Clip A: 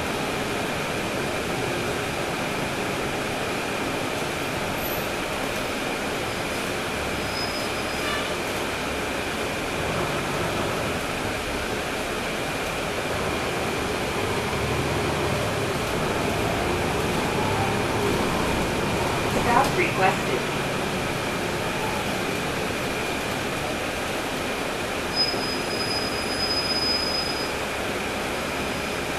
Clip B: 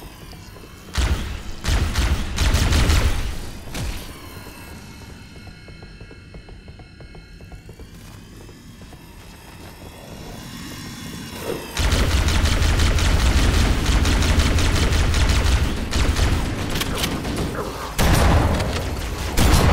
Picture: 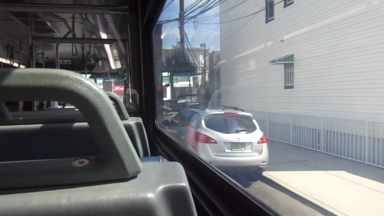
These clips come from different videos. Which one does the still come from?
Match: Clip A